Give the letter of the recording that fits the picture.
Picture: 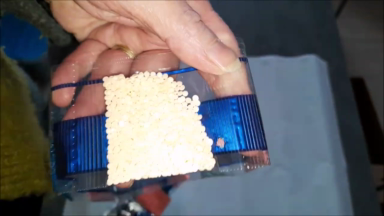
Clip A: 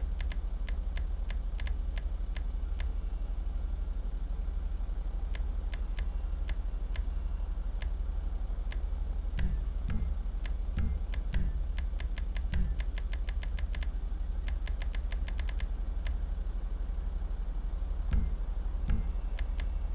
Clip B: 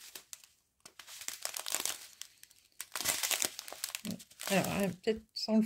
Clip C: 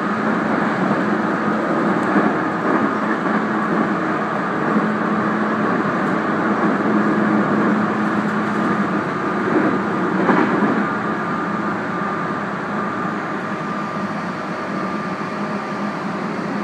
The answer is B